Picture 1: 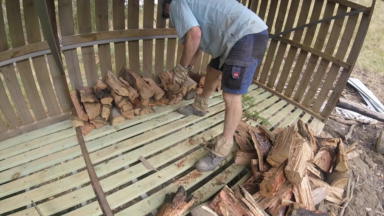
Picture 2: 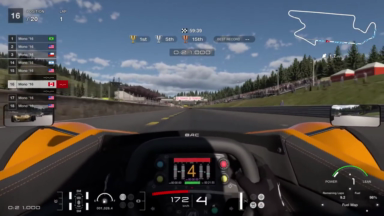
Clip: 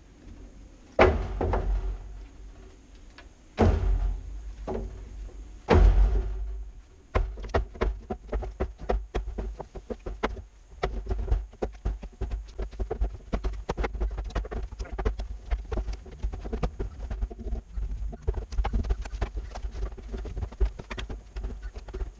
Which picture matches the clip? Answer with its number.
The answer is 1